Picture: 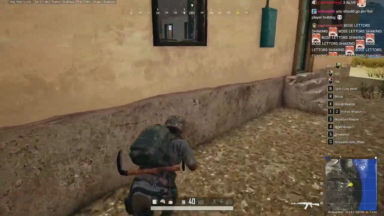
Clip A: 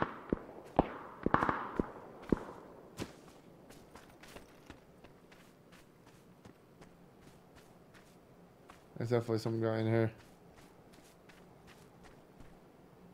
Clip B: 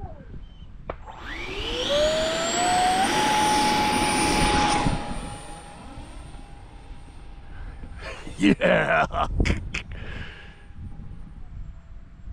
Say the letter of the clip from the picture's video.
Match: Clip A